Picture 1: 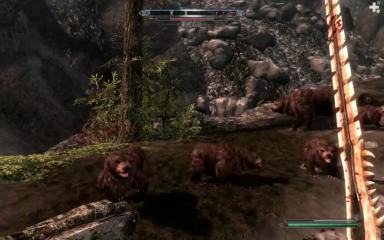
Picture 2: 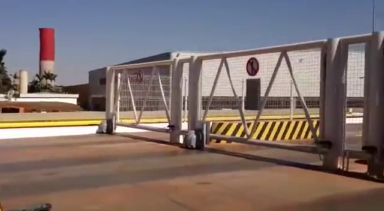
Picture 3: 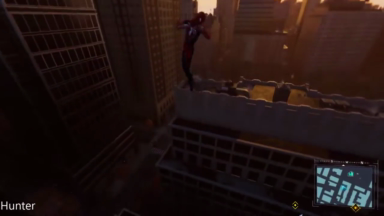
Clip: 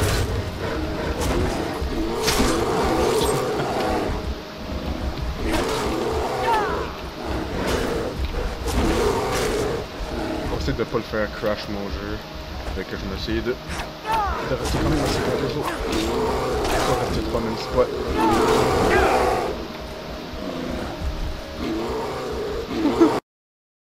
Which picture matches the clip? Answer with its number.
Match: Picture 1